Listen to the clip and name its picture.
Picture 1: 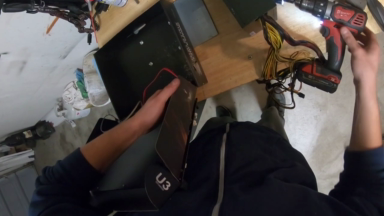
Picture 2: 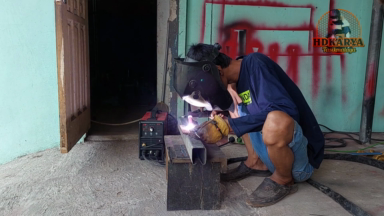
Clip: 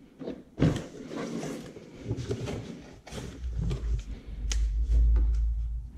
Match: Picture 1